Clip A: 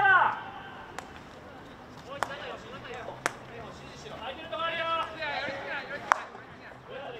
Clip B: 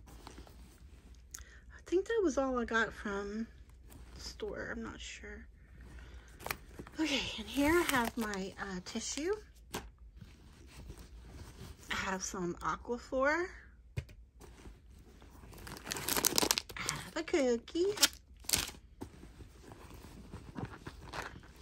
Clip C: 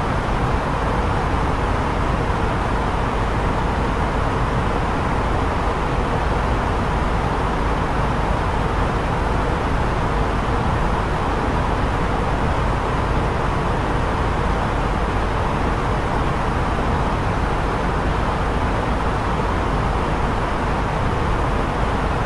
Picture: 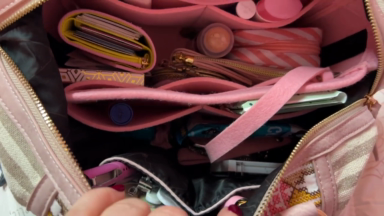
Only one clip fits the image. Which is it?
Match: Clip B